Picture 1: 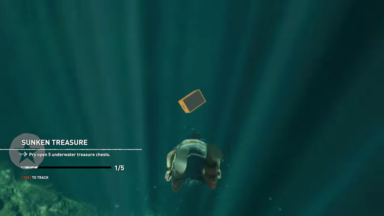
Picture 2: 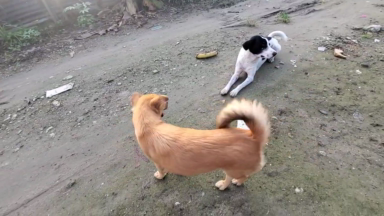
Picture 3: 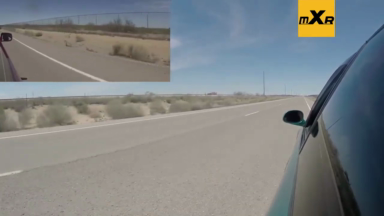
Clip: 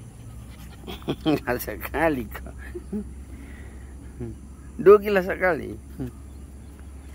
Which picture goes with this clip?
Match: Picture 2